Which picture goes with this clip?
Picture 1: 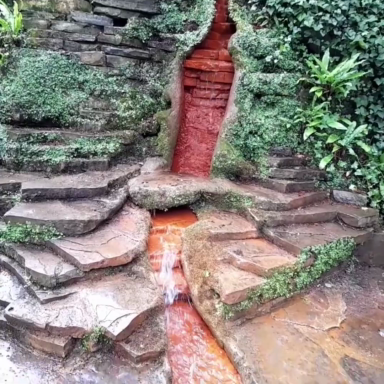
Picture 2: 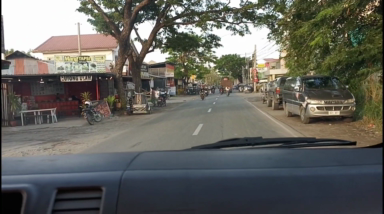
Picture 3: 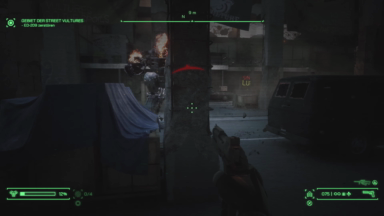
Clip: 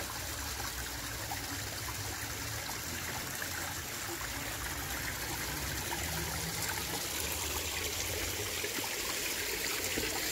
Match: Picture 1